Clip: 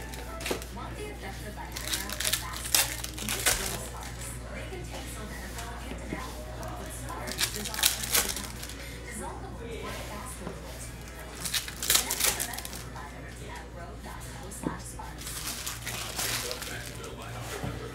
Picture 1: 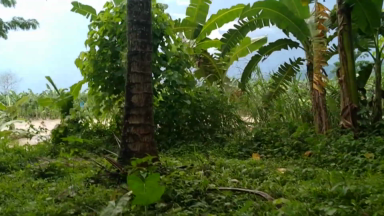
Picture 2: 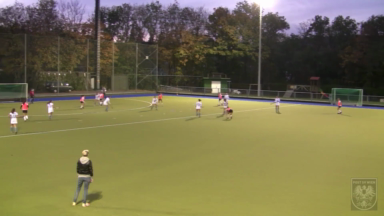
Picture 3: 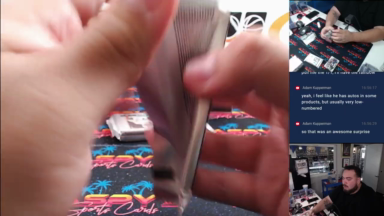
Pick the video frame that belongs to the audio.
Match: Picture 3